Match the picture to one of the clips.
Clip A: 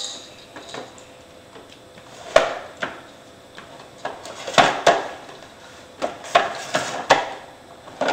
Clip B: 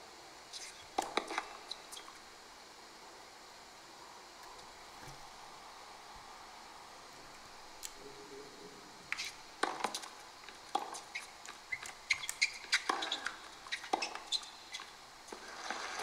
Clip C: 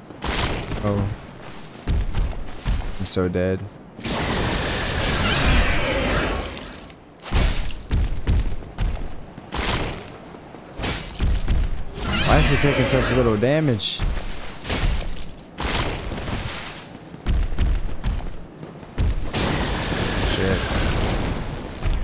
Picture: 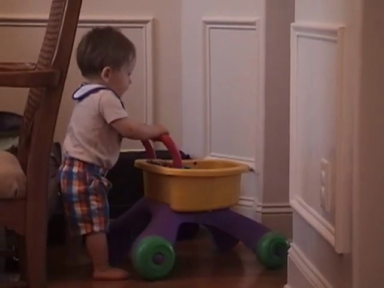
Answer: A